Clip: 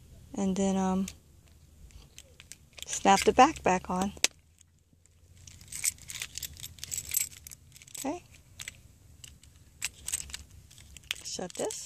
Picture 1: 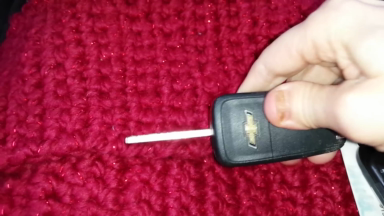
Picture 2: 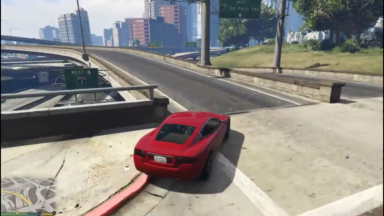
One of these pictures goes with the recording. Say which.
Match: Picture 1